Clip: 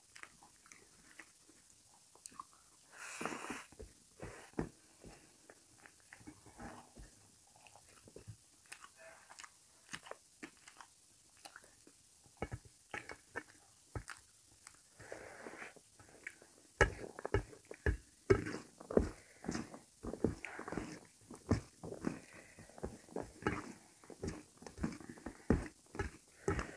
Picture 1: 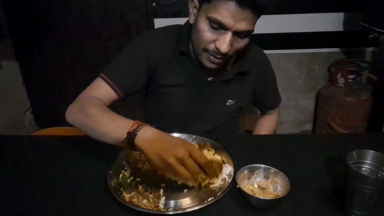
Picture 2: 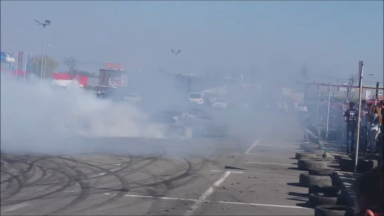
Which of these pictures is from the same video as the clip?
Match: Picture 1